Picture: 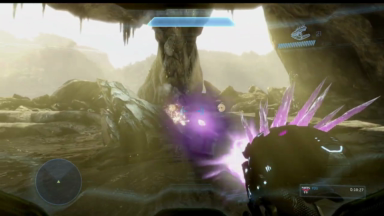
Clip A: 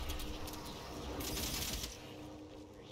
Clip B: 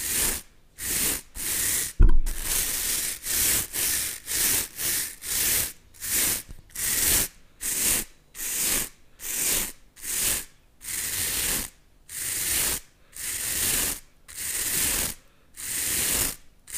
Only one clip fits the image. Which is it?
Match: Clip A